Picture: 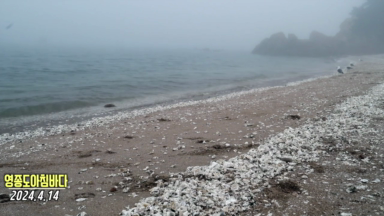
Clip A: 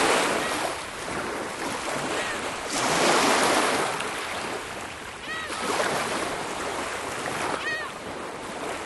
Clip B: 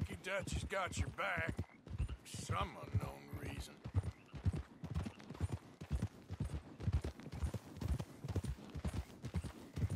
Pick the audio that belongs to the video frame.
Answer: A